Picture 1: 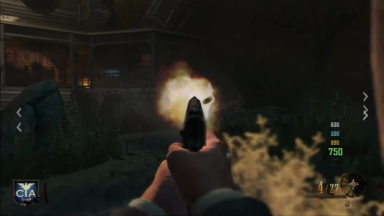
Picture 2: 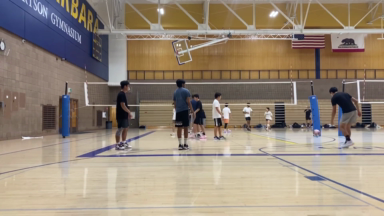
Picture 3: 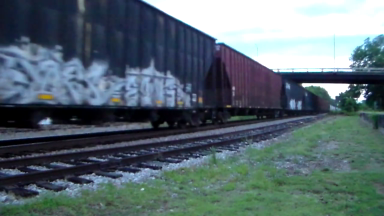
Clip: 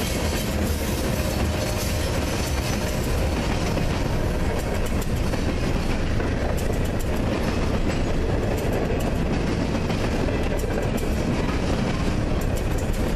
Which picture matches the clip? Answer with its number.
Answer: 3